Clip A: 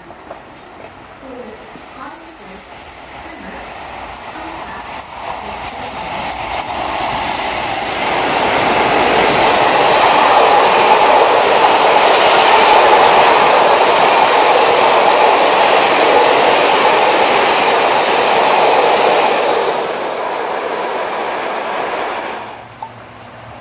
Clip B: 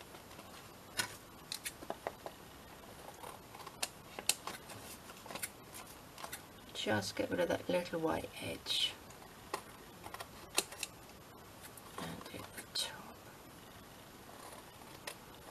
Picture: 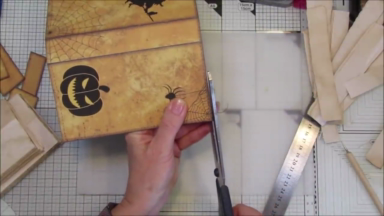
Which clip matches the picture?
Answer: B